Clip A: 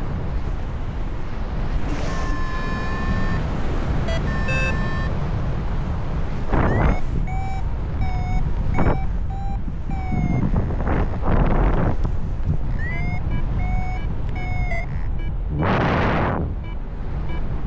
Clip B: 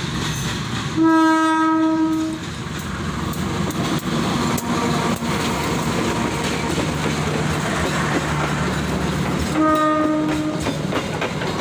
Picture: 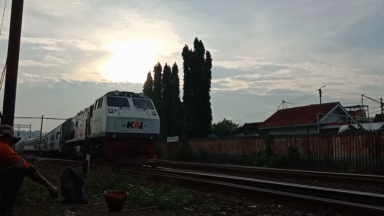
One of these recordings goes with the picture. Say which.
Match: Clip B